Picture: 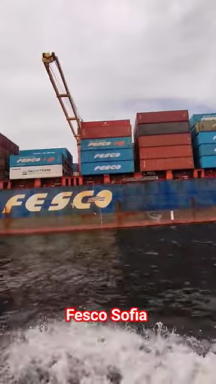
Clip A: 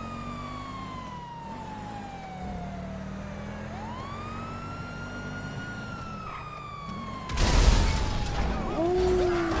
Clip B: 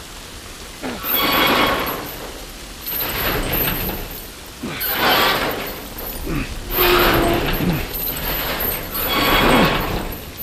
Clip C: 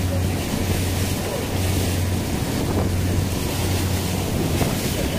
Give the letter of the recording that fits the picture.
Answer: C